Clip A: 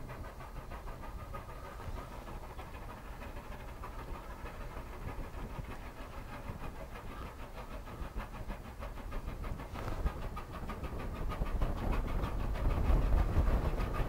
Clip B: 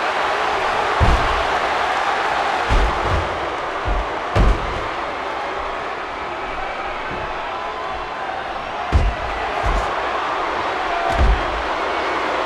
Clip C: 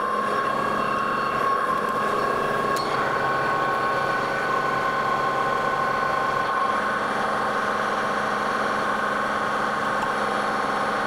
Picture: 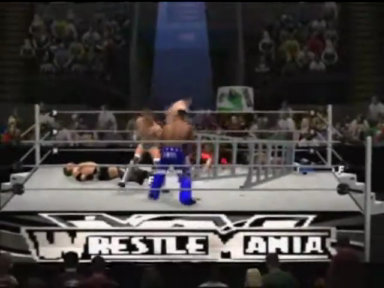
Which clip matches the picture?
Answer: B